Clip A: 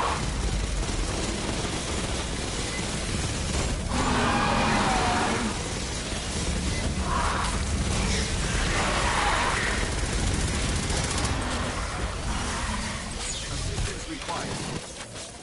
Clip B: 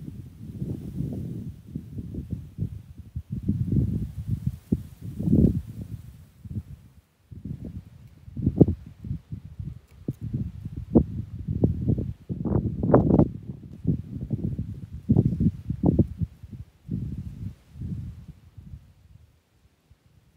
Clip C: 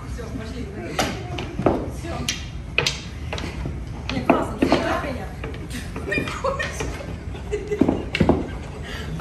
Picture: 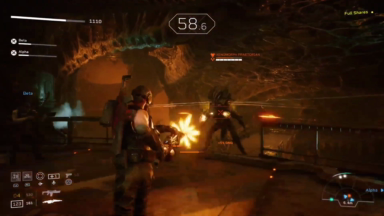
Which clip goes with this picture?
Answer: A